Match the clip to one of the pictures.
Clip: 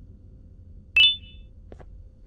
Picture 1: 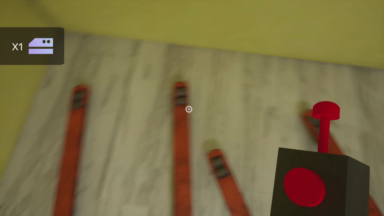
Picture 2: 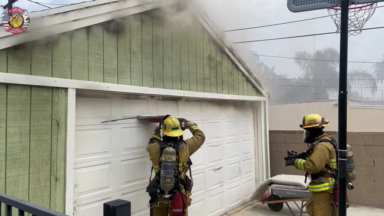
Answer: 1